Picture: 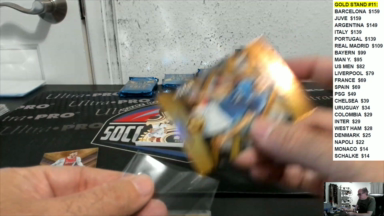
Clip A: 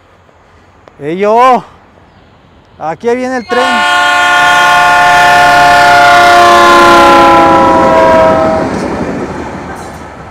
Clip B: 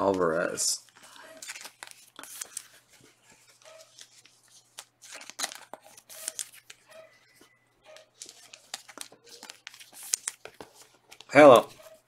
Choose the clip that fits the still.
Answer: B